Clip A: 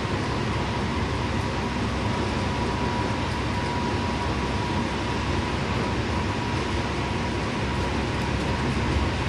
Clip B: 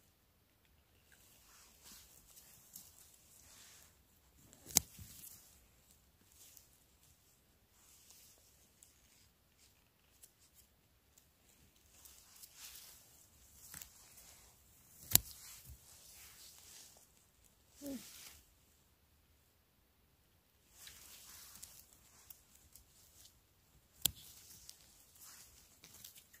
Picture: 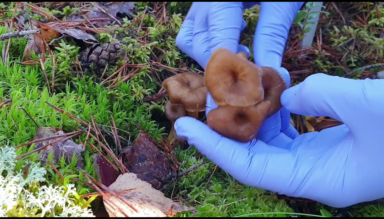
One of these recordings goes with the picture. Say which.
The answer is B